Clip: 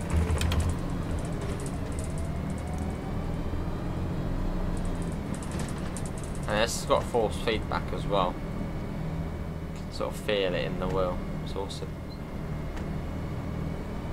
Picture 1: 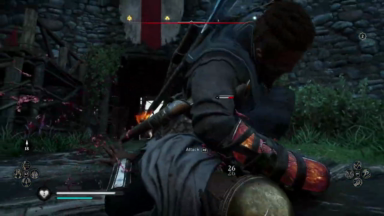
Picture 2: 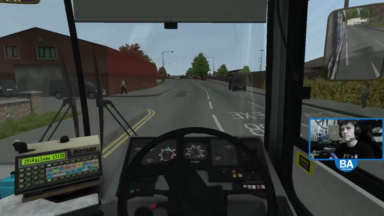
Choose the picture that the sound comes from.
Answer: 2